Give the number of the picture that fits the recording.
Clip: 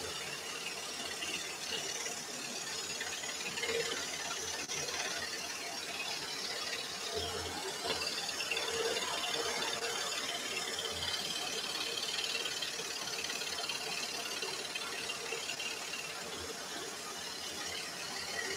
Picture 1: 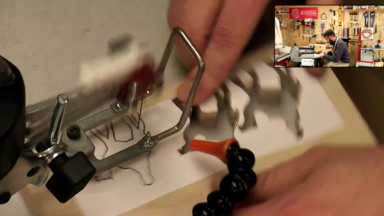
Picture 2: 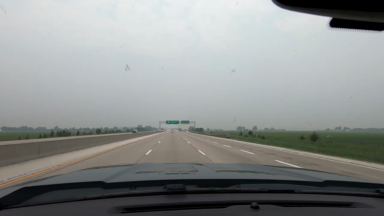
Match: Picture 1